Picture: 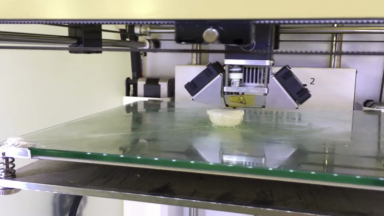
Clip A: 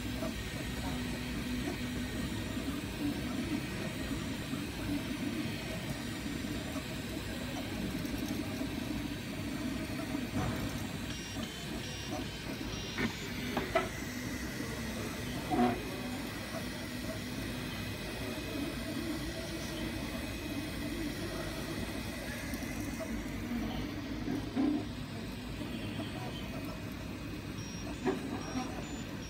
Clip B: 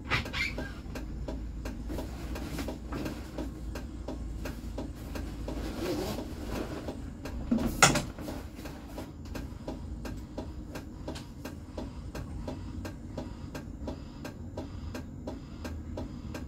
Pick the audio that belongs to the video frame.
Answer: A